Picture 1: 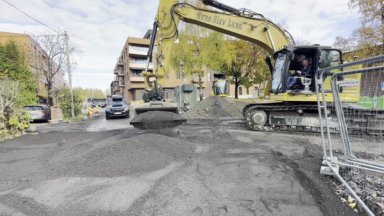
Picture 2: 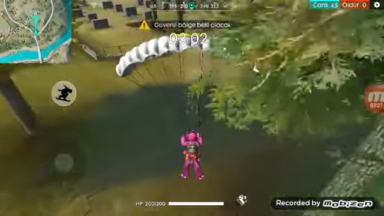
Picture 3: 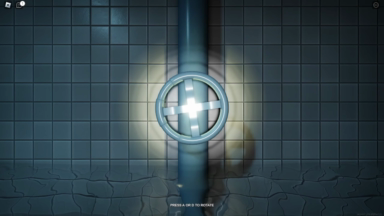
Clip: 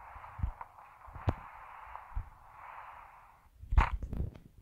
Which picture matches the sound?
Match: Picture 2